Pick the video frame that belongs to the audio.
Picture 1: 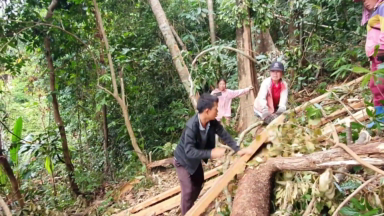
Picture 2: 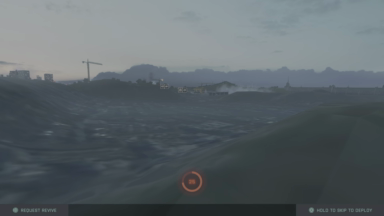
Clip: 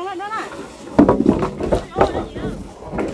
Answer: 1